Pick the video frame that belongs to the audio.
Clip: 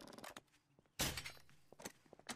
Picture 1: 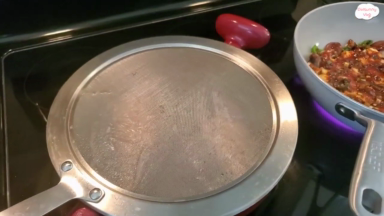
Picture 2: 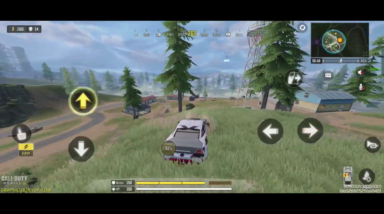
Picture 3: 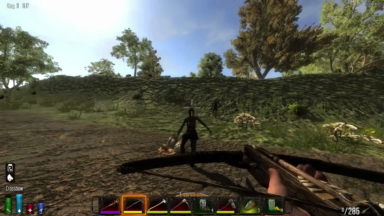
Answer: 3